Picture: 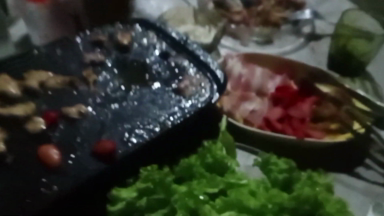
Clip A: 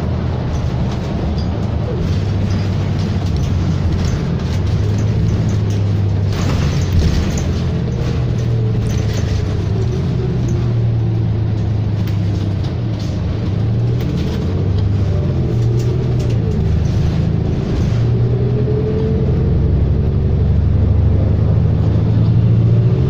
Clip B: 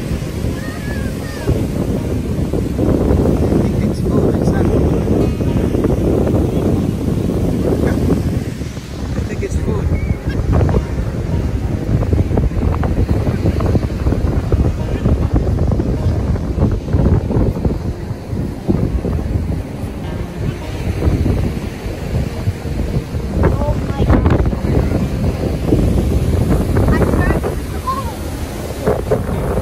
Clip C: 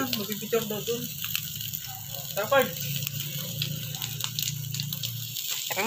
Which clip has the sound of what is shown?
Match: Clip C